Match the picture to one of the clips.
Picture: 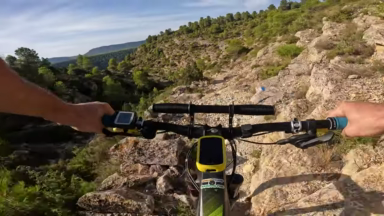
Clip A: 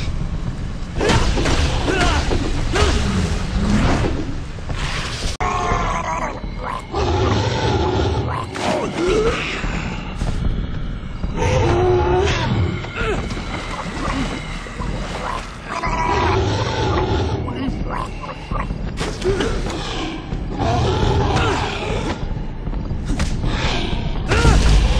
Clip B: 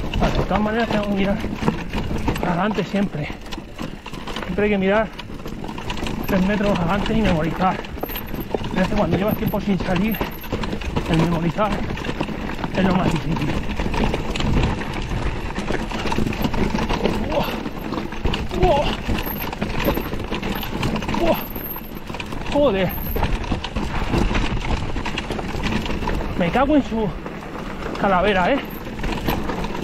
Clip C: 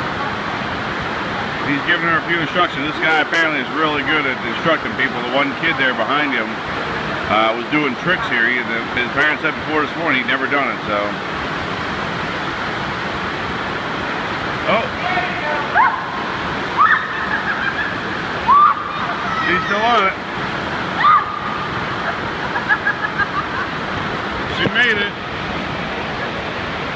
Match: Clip B